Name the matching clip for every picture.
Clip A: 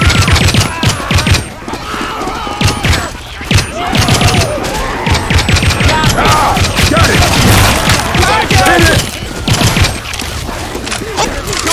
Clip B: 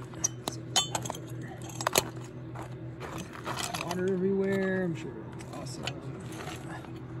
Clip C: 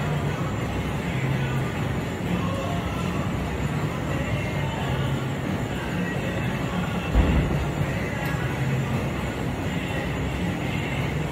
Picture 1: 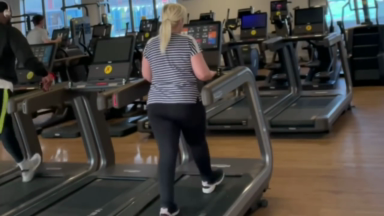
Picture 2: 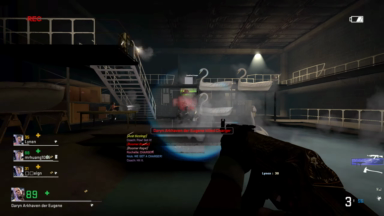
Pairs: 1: C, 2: A